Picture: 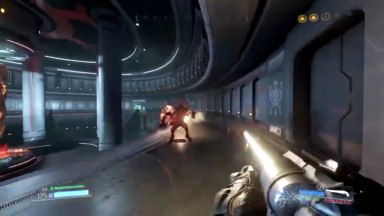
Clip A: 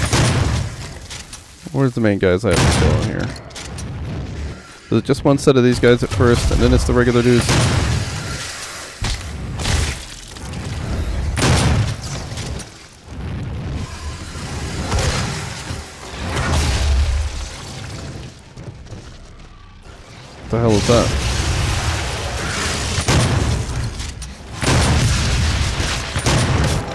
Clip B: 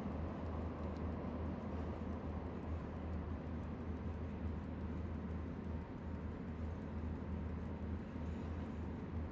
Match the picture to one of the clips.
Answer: A